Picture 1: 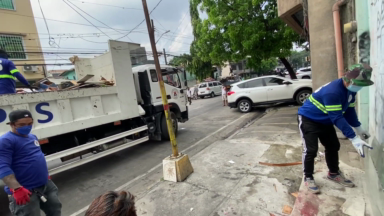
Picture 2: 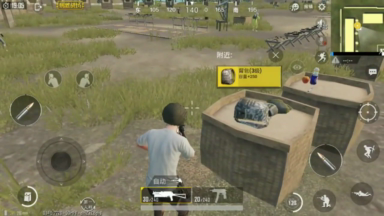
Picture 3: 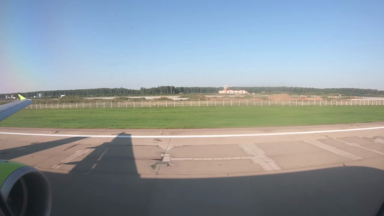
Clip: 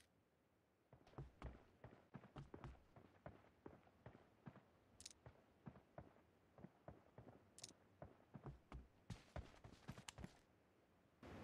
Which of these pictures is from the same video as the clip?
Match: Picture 2